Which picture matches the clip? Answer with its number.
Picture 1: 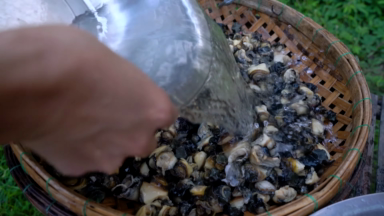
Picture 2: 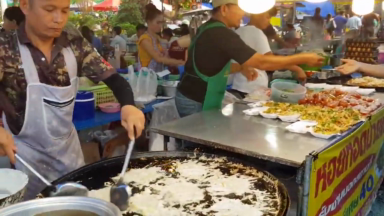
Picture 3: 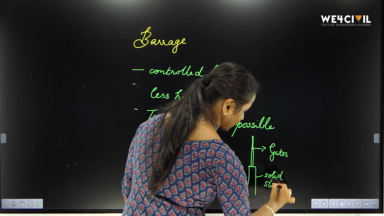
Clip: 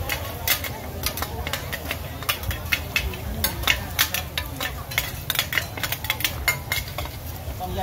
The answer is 2